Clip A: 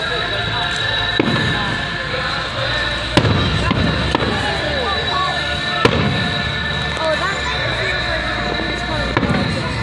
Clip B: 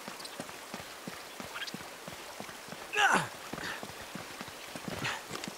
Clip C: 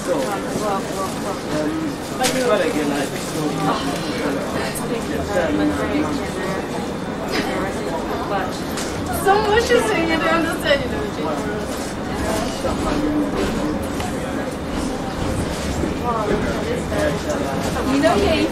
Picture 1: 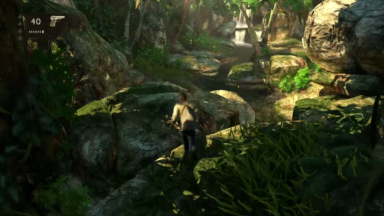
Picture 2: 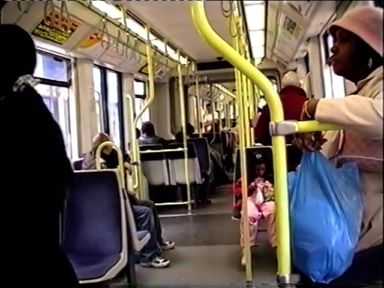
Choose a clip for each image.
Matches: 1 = B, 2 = C